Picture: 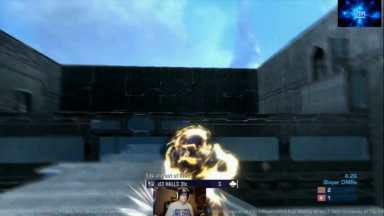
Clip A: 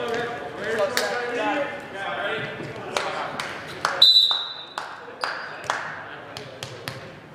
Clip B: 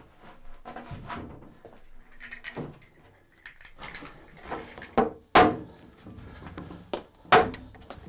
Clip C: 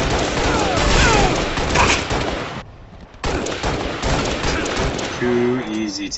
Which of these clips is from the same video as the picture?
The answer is C